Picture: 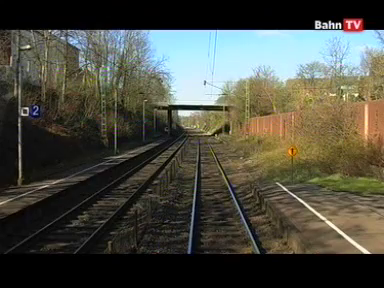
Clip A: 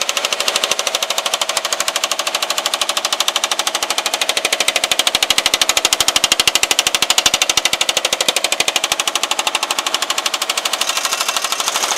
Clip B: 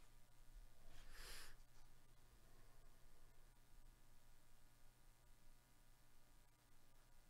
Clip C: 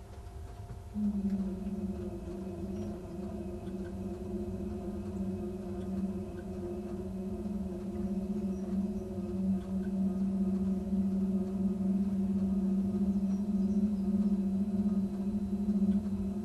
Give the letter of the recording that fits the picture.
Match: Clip C